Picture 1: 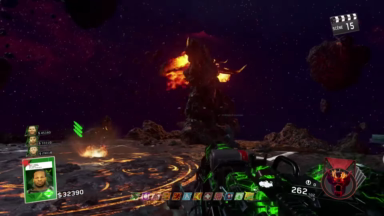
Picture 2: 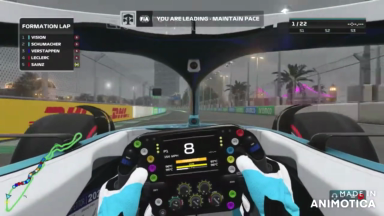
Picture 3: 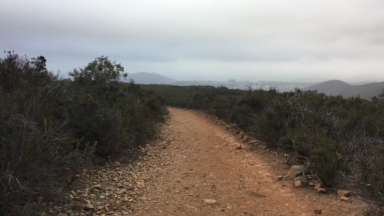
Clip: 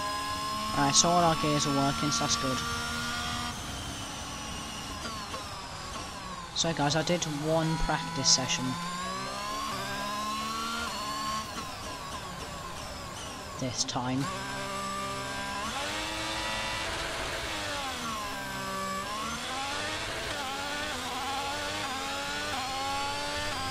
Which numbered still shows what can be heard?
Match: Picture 2